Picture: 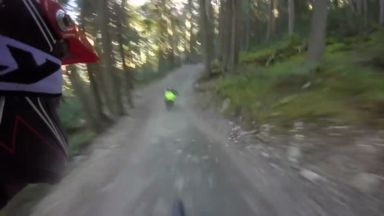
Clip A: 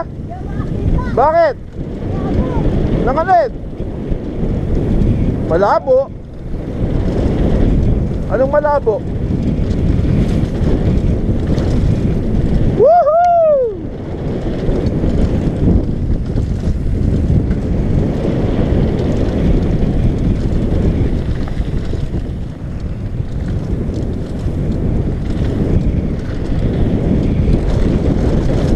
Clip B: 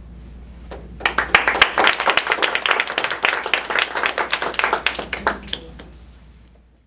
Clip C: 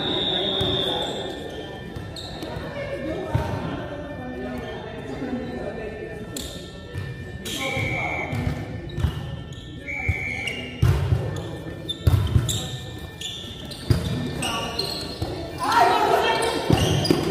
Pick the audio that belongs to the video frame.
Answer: A